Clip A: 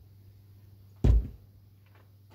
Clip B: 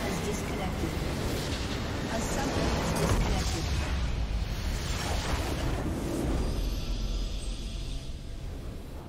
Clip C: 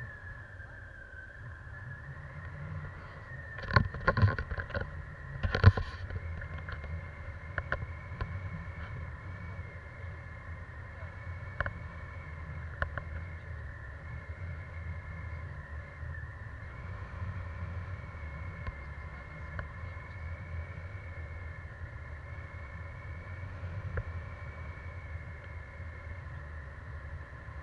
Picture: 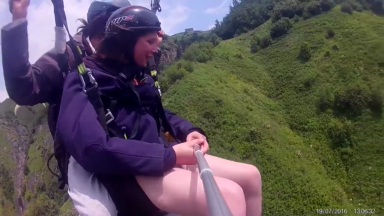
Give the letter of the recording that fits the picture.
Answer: C